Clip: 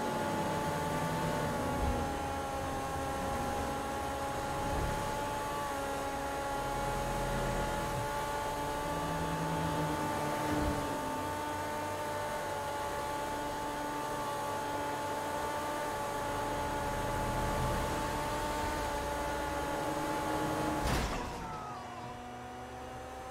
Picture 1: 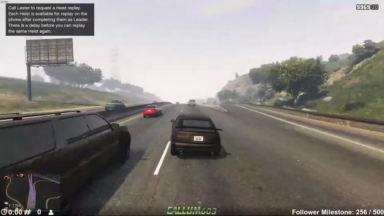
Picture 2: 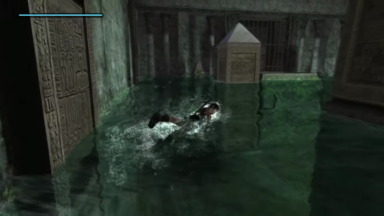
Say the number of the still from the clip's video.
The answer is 1